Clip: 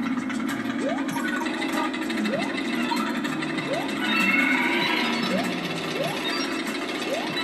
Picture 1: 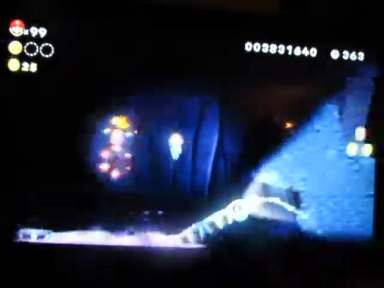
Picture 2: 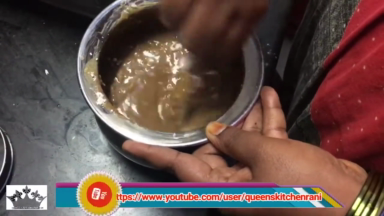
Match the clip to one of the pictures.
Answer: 1